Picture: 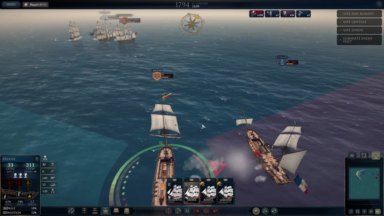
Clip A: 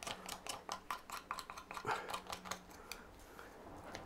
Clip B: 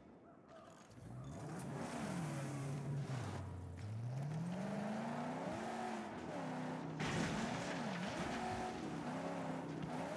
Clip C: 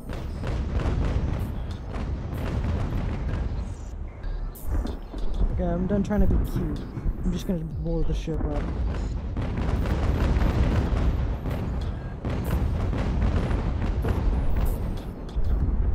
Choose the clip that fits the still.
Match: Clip C